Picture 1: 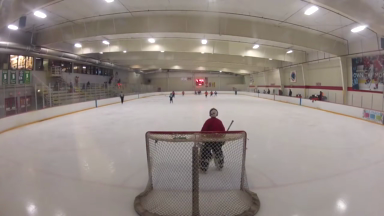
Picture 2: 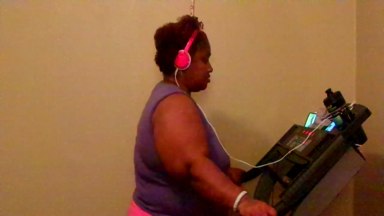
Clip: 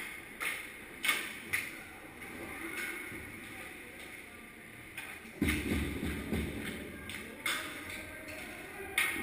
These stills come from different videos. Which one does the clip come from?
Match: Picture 1